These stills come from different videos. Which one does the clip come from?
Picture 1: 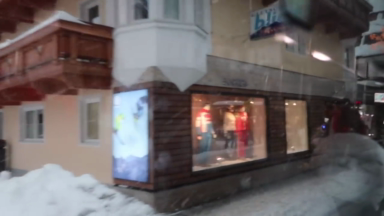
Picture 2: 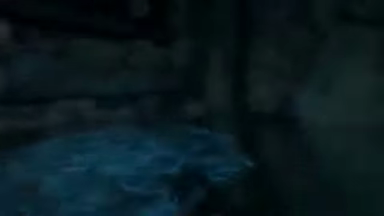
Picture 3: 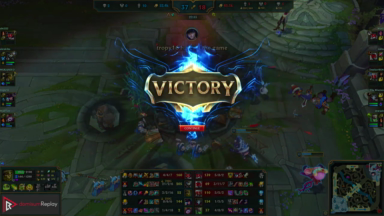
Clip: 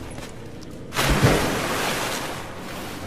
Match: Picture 2